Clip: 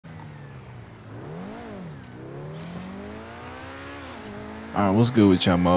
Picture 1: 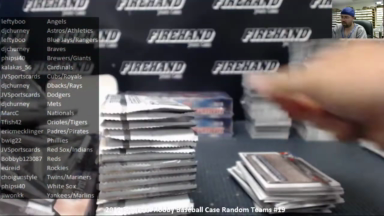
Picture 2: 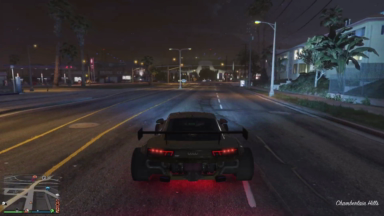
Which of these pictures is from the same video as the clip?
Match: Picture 2